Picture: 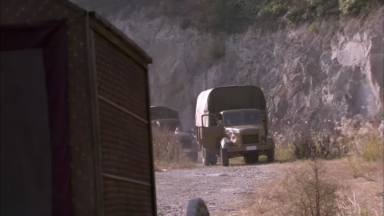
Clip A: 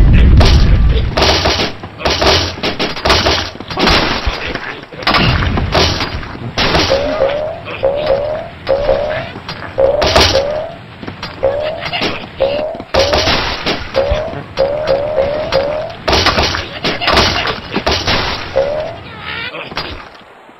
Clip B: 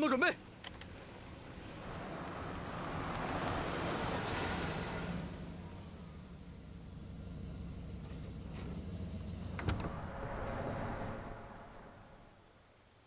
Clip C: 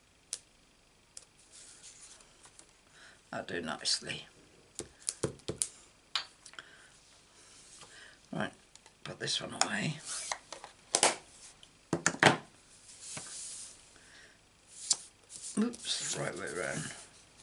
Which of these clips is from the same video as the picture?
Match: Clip B